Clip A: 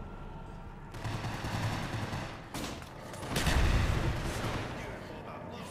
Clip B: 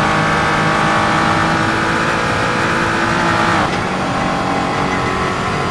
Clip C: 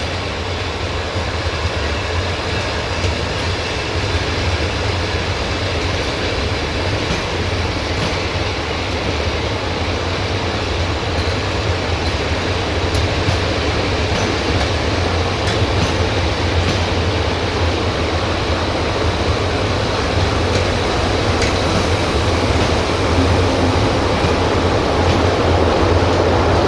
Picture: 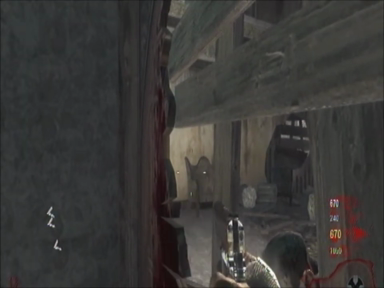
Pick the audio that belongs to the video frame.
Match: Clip A